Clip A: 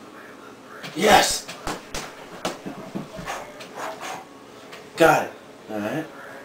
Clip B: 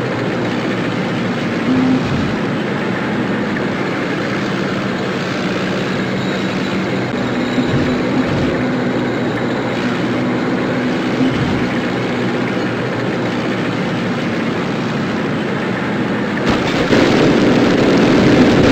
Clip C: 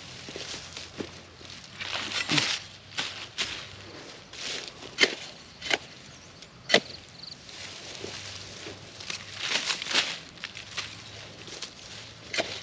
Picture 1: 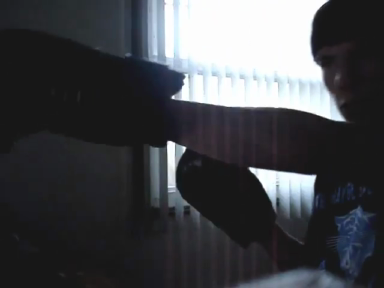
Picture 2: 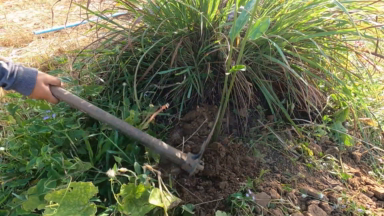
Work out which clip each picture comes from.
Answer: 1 A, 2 C